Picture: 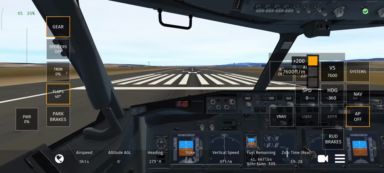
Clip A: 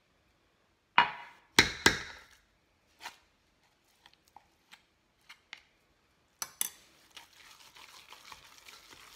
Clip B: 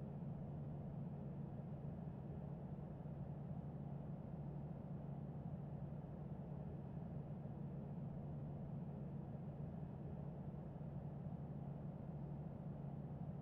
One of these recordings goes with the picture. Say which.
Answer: B